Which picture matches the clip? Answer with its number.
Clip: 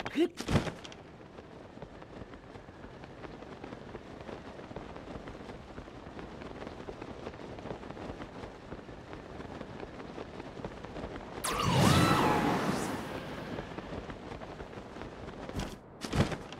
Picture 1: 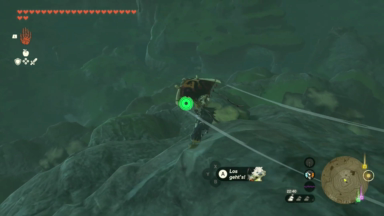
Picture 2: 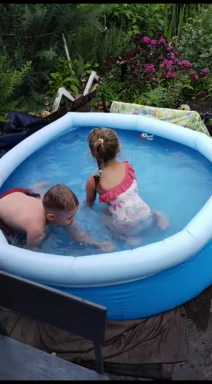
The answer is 1